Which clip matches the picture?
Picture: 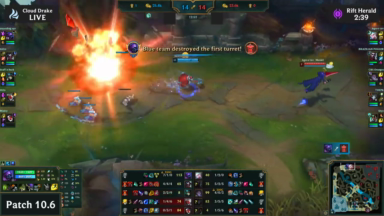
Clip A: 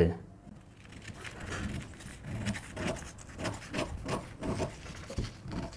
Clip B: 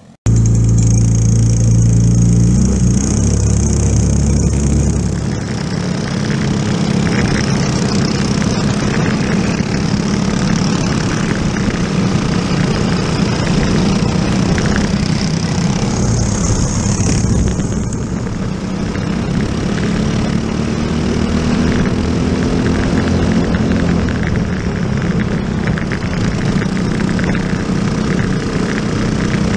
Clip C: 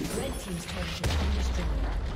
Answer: C